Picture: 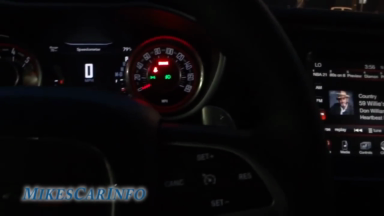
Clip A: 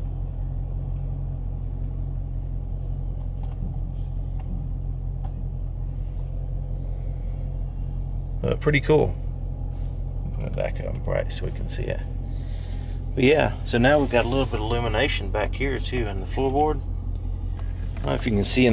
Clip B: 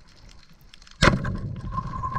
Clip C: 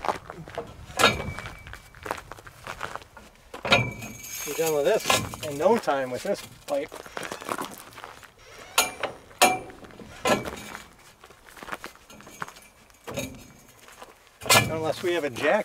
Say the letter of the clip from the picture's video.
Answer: A